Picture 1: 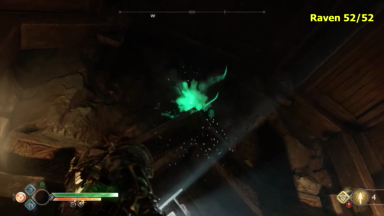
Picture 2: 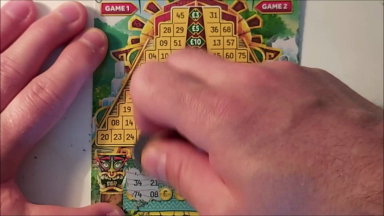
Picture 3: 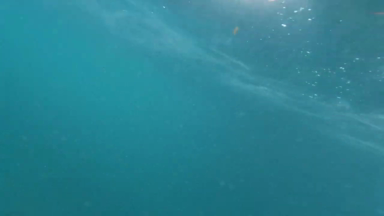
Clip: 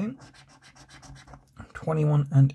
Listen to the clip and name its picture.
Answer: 2